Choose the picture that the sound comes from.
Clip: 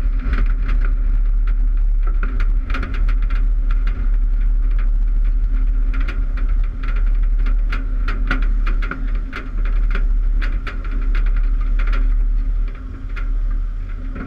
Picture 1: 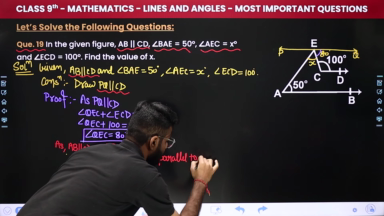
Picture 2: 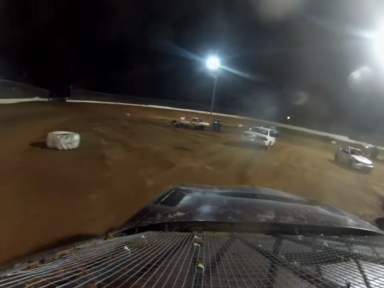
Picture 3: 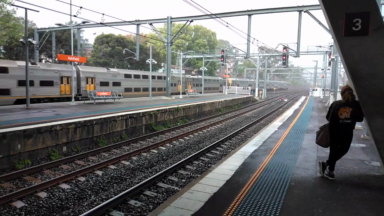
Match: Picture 2